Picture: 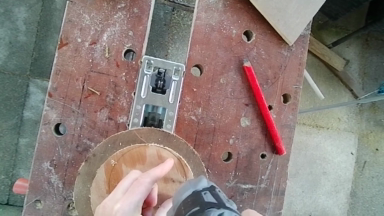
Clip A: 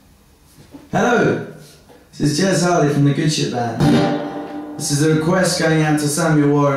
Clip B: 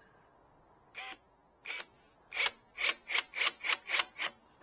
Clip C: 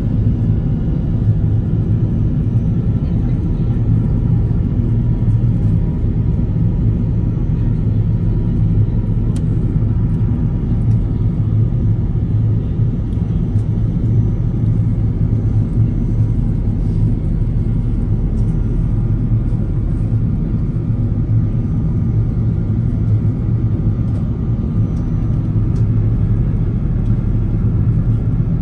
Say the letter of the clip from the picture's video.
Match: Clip B